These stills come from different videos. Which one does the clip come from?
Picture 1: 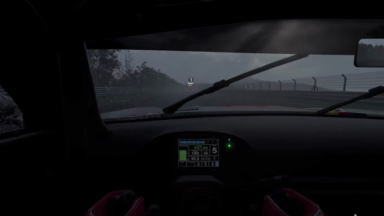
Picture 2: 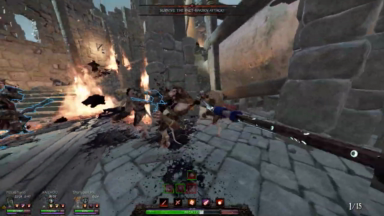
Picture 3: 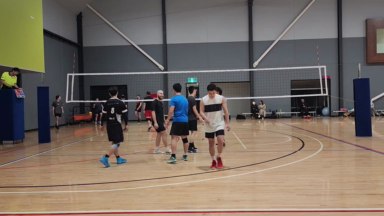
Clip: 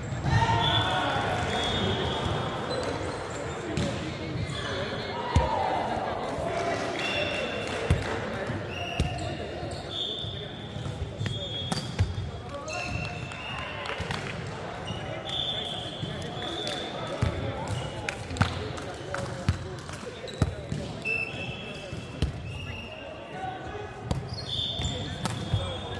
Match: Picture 3